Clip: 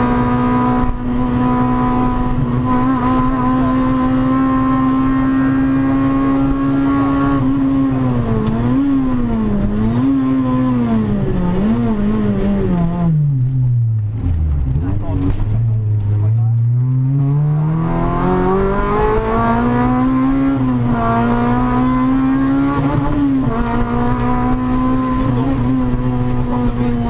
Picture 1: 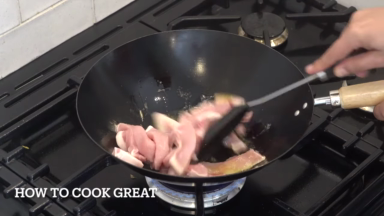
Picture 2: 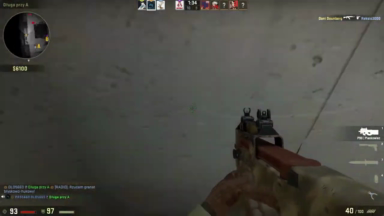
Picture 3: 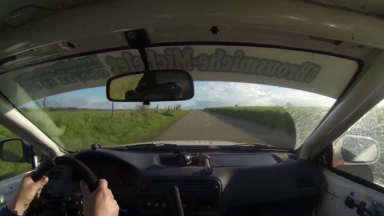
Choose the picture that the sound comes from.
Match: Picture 3